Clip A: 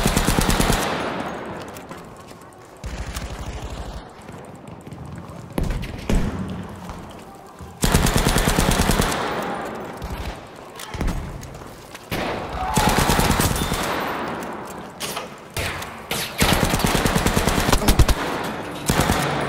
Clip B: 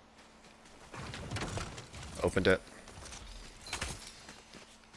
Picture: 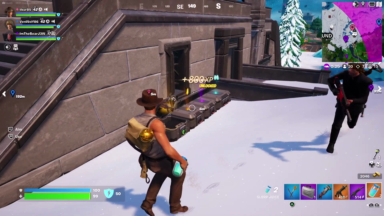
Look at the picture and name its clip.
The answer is B